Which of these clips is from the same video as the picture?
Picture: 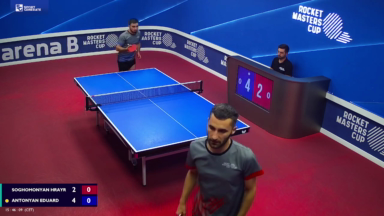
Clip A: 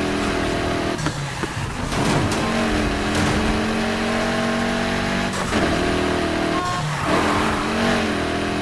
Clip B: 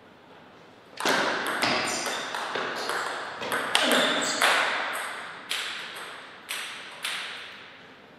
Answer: B